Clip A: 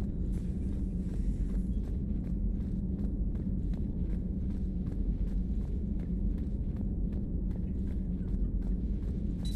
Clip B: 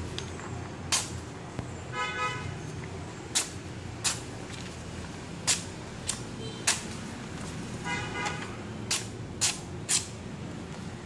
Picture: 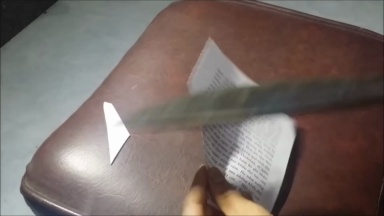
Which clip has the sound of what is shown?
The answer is B